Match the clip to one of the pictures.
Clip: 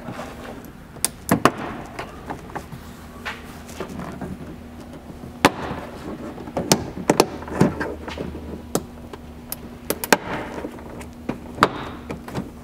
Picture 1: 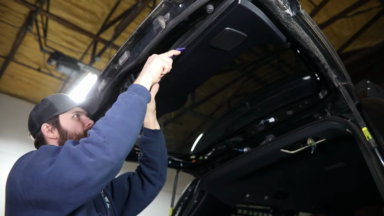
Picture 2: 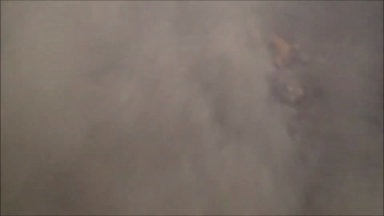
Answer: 1